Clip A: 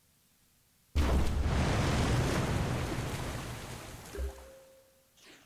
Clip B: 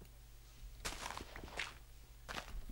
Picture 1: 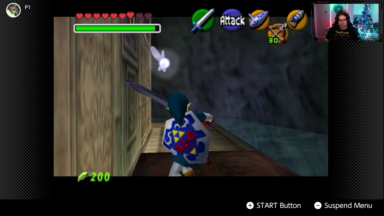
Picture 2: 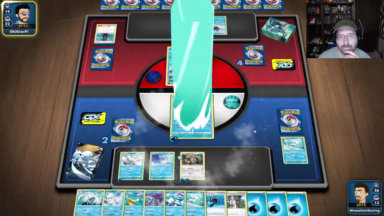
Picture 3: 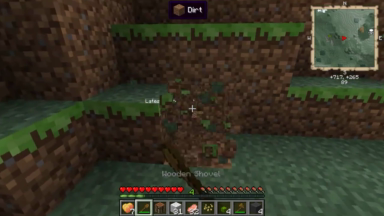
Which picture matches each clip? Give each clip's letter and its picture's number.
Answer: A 2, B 3